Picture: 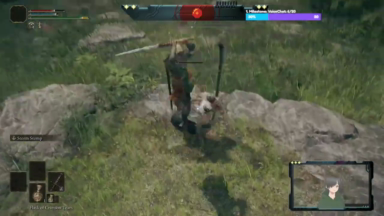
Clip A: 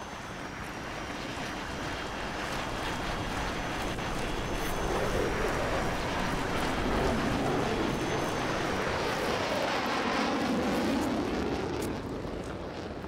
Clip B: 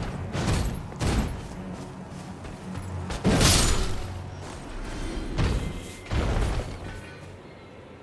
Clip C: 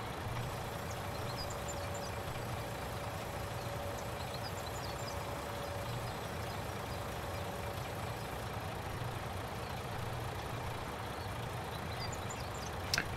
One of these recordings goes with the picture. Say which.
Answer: B